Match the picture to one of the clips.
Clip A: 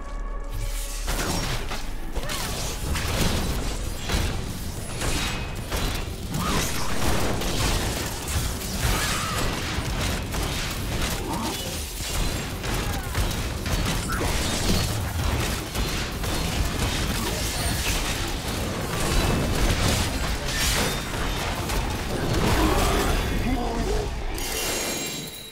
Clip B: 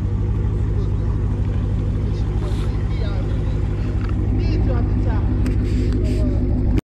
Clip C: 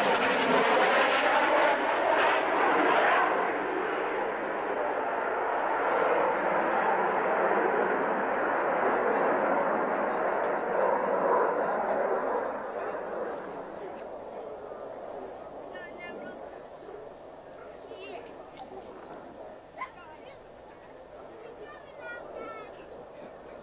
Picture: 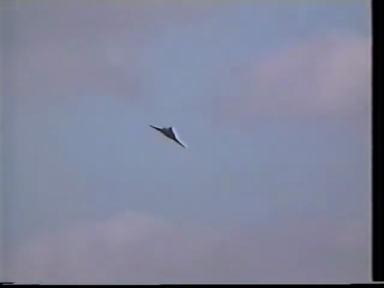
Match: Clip C